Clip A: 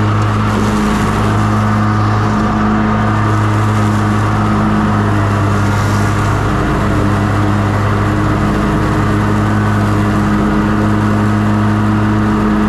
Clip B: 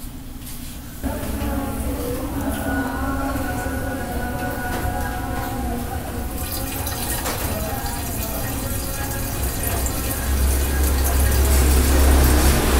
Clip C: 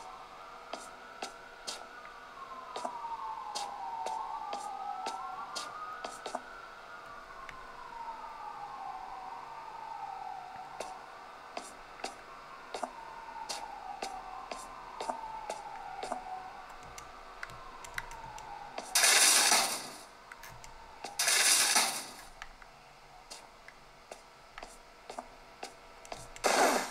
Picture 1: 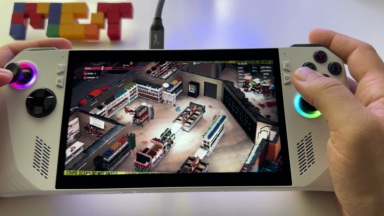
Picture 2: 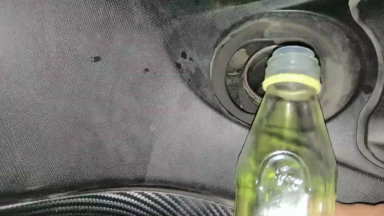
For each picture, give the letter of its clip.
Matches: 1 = C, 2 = B